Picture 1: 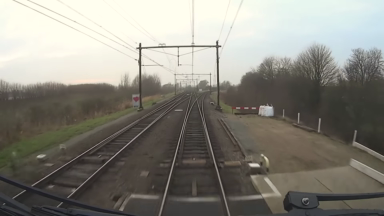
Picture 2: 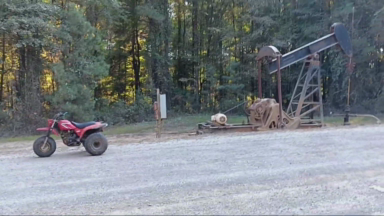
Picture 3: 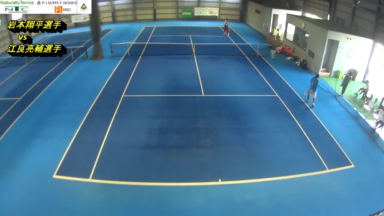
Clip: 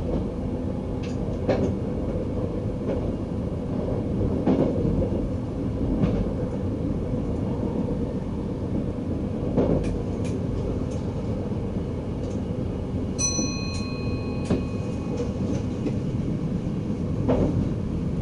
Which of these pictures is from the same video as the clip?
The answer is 1